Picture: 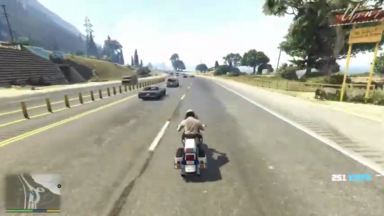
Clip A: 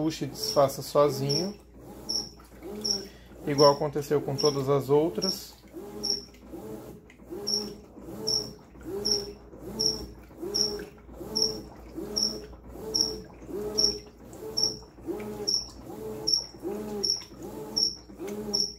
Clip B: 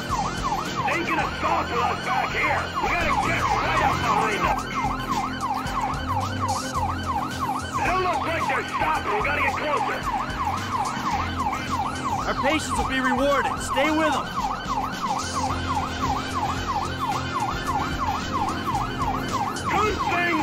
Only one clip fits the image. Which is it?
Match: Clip B